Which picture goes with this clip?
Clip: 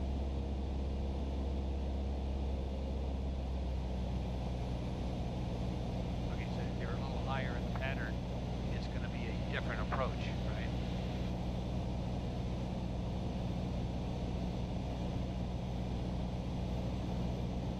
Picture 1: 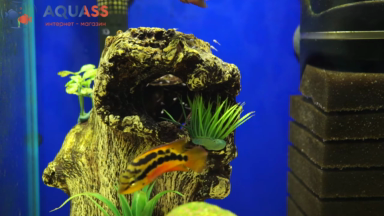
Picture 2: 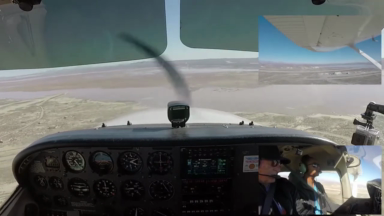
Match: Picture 2